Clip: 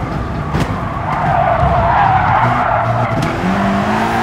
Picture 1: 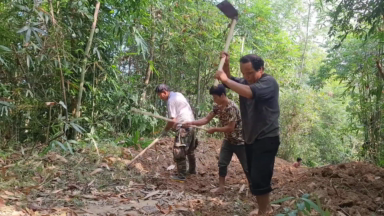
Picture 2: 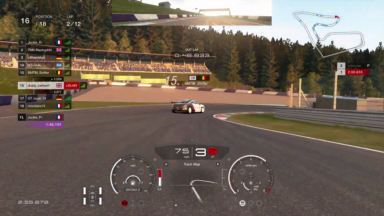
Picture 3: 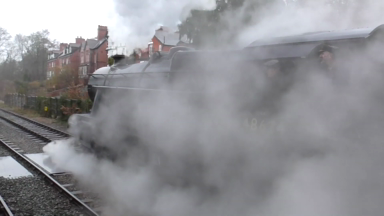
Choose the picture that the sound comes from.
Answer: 2